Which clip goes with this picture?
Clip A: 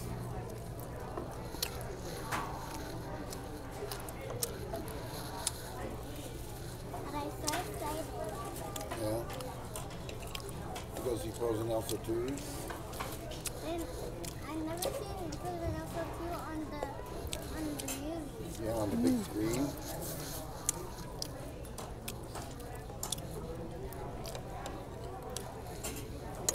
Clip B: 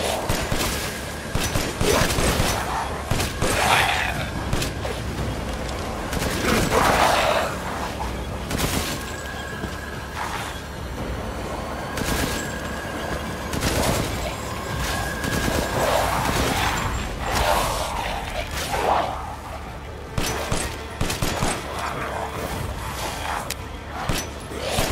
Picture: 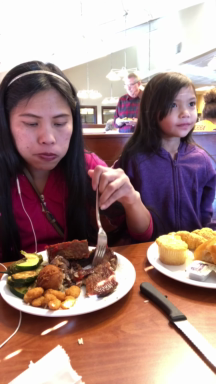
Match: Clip A